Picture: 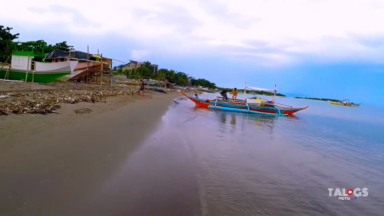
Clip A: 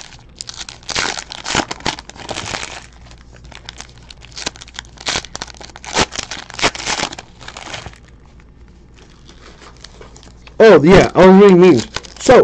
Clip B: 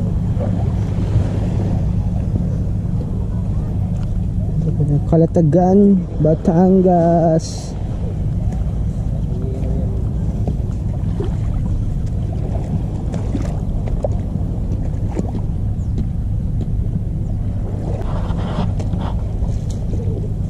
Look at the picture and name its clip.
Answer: B